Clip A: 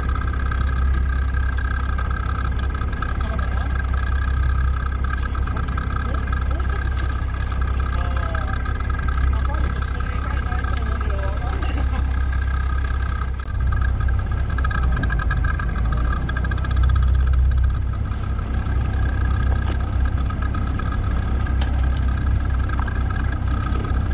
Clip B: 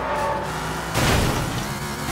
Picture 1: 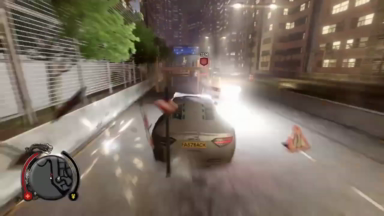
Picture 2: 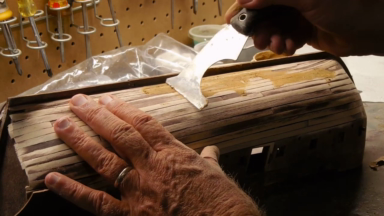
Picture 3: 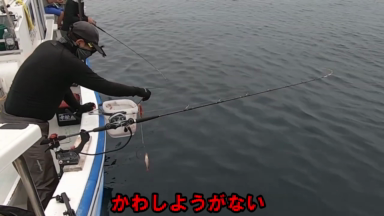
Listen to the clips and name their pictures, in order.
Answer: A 3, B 1